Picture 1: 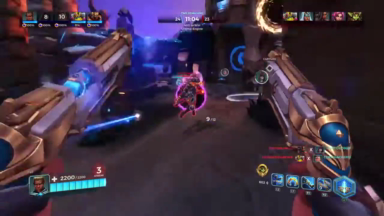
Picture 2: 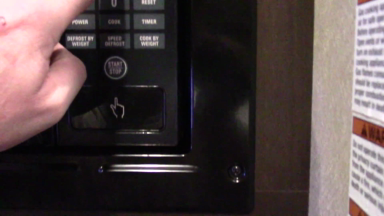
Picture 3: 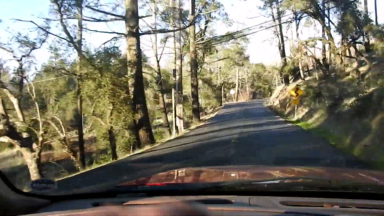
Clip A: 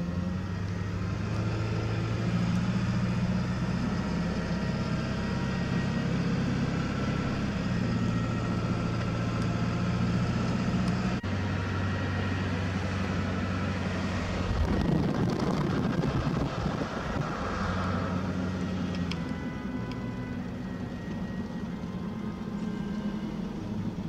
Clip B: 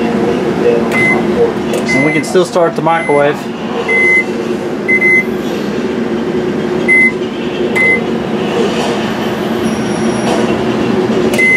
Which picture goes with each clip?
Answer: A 3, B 2